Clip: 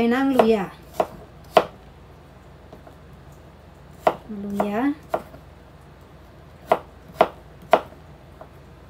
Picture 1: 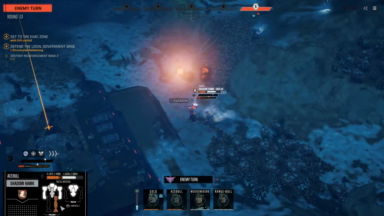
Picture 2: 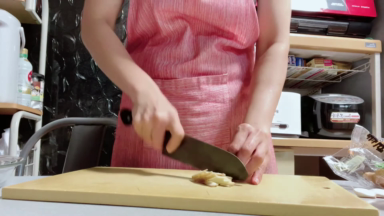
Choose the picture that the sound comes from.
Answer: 2